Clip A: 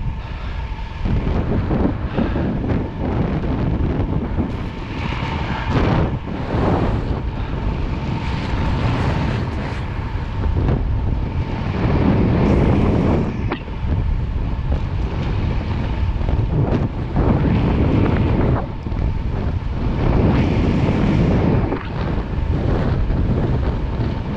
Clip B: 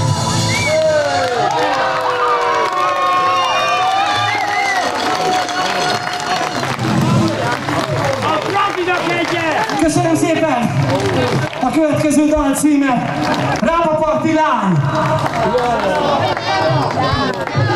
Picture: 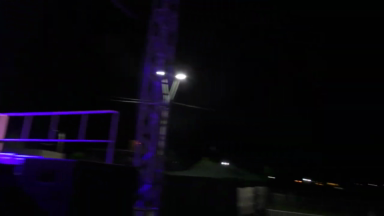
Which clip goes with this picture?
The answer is B